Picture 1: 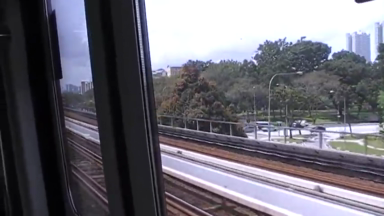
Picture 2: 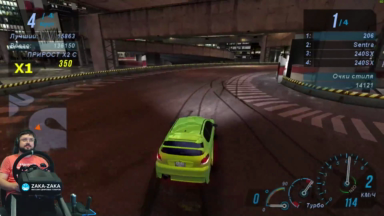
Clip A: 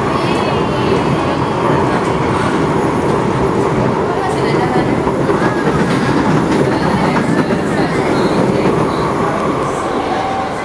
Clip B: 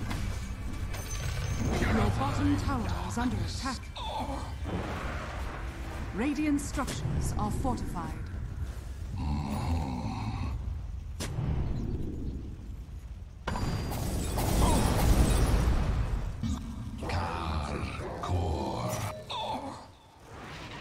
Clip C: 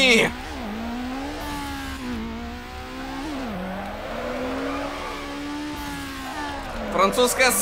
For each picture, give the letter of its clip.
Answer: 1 A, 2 C